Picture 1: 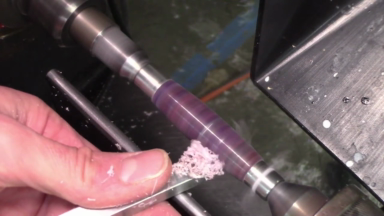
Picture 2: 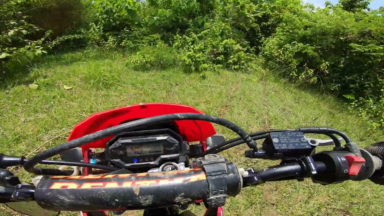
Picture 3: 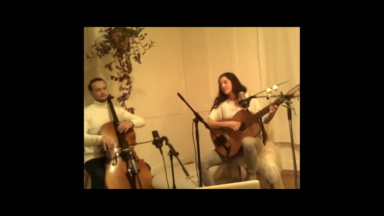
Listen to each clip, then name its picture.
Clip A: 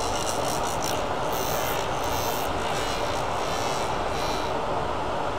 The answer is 1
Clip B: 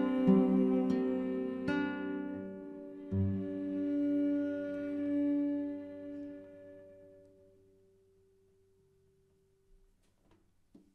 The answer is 3